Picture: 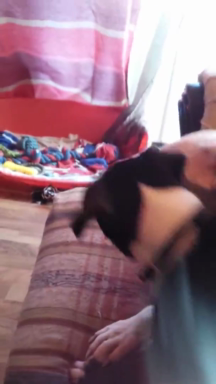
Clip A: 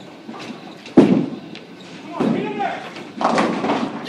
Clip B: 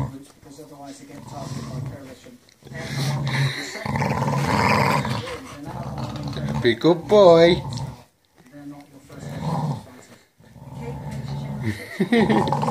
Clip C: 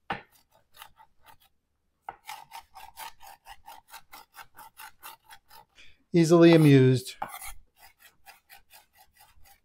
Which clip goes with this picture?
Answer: B